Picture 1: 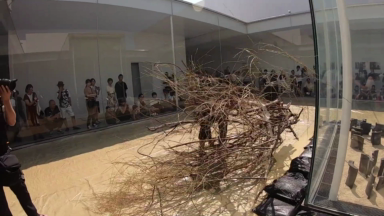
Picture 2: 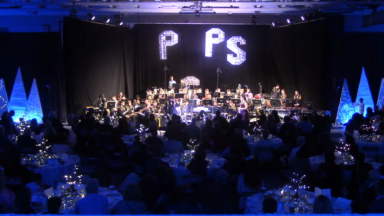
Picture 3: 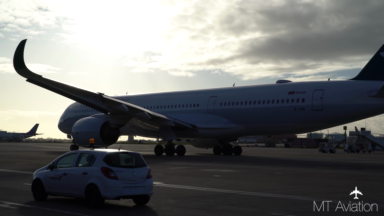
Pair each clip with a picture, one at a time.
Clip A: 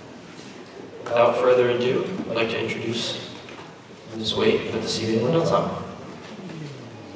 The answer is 2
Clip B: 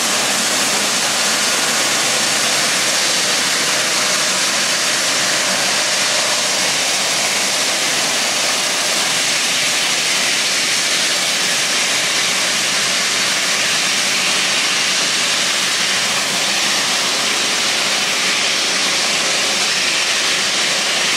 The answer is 3